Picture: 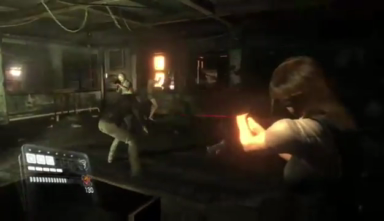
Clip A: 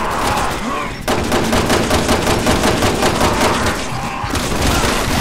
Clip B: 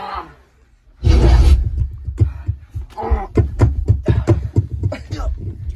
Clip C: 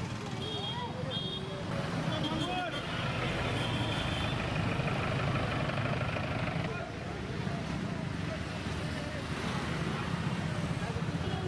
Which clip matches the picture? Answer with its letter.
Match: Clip A